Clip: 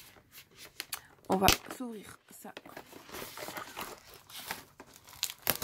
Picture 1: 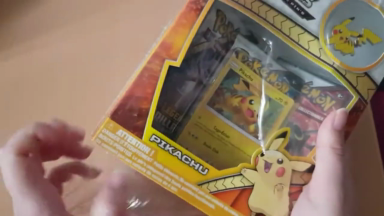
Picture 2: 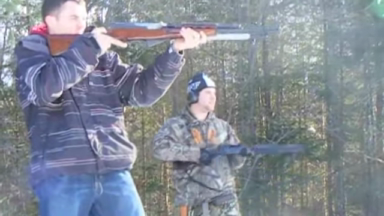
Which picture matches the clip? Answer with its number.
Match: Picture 1